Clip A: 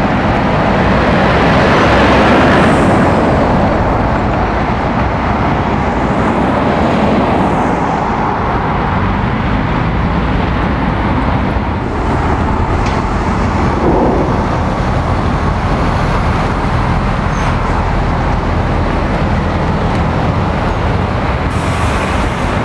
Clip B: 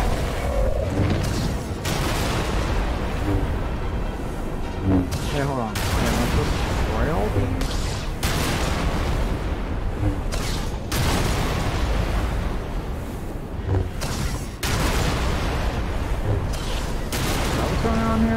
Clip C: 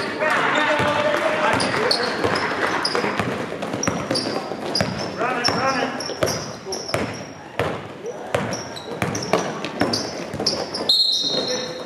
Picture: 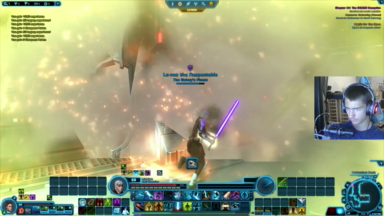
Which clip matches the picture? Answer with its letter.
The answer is B